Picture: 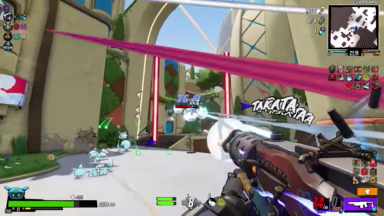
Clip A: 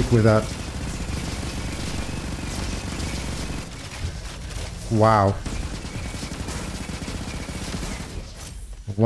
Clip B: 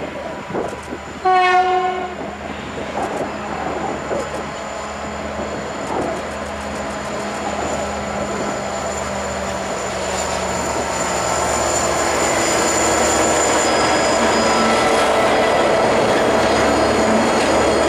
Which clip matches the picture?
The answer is A